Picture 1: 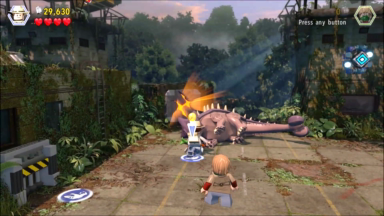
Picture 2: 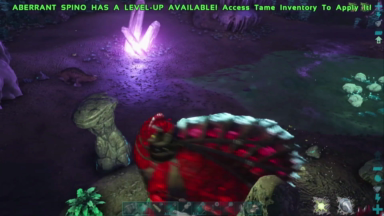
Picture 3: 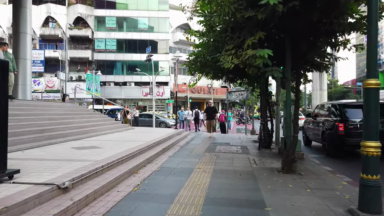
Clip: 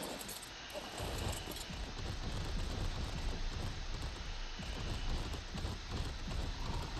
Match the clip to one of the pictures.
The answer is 2